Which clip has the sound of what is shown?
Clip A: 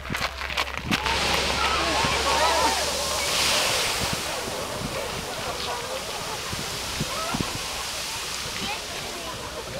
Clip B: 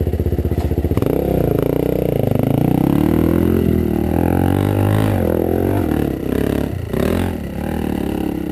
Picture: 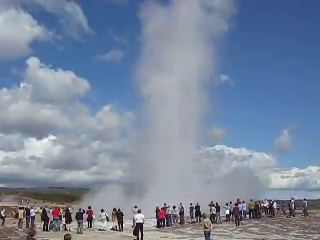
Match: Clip A